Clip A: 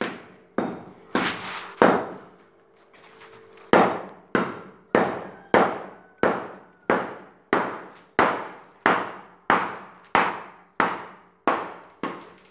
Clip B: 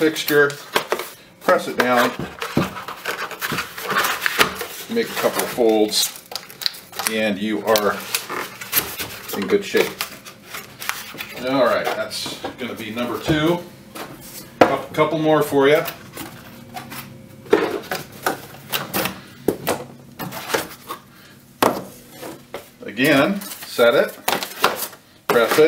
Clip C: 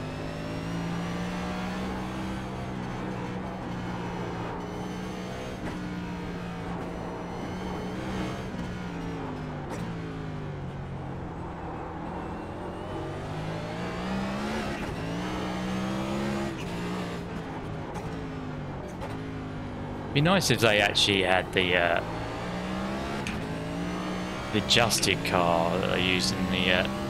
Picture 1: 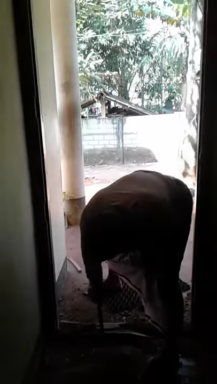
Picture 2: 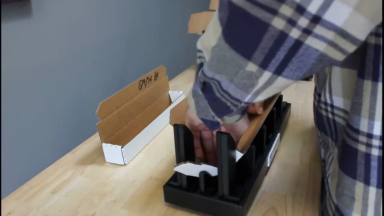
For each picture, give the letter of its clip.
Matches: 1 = A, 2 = B